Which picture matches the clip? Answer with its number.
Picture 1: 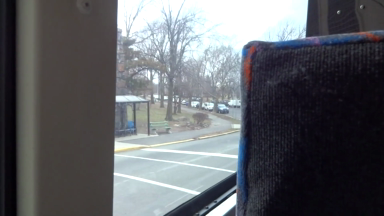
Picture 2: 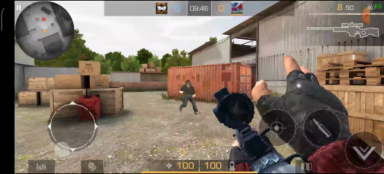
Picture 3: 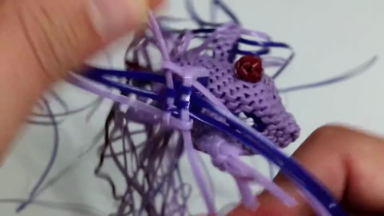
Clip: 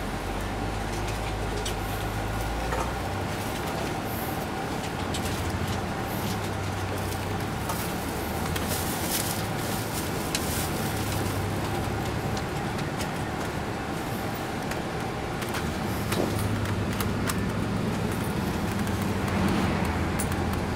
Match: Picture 1